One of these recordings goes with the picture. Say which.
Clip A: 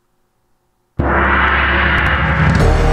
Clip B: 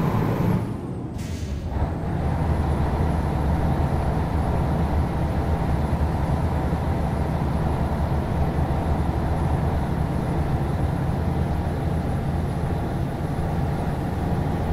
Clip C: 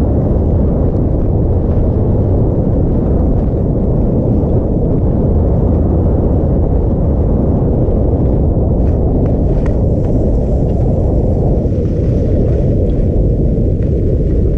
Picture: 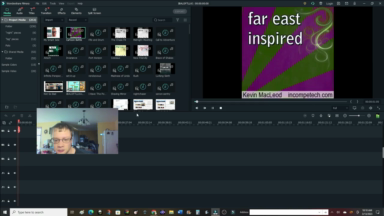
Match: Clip A